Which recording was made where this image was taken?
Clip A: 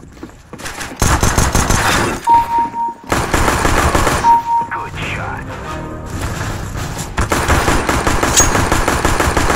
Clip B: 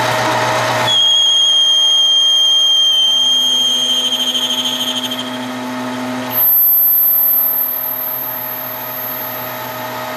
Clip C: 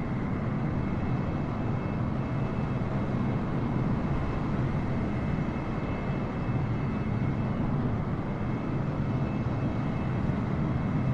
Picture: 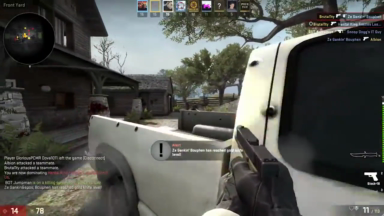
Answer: A